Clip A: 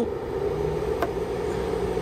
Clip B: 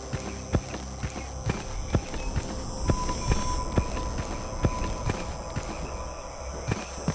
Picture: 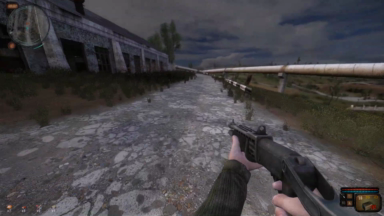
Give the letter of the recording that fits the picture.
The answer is B